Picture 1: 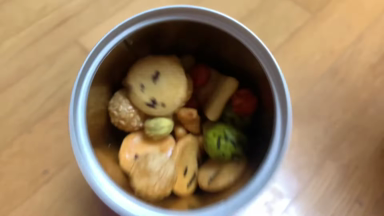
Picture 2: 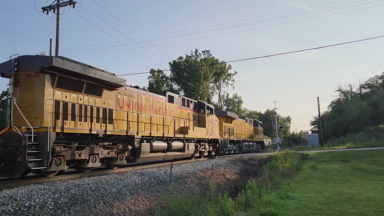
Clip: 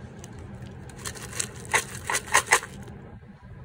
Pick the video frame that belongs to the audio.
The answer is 1